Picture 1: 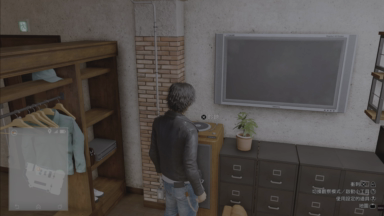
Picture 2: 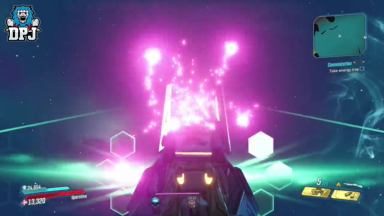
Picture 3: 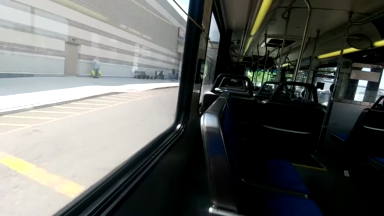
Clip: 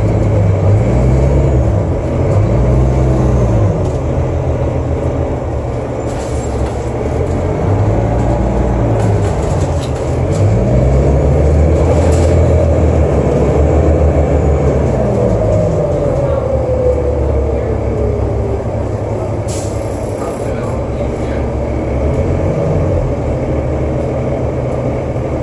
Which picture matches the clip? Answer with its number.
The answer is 3